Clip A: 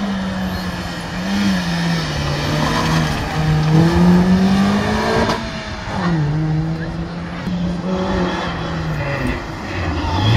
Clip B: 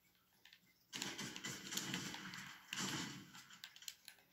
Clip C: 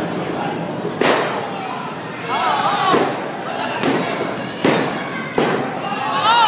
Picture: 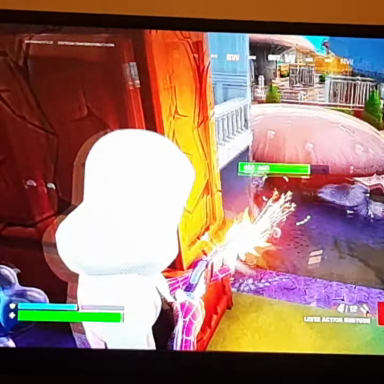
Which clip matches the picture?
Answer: B